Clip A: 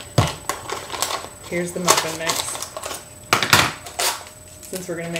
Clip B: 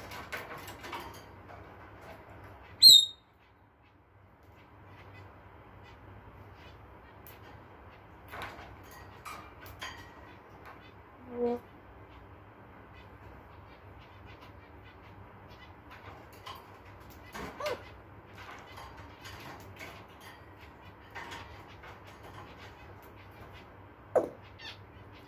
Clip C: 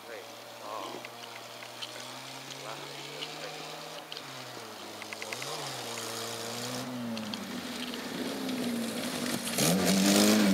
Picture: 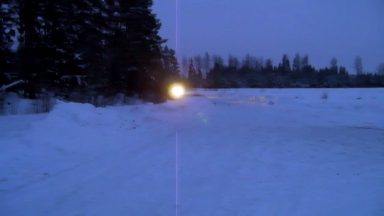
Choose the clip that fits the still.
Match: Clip C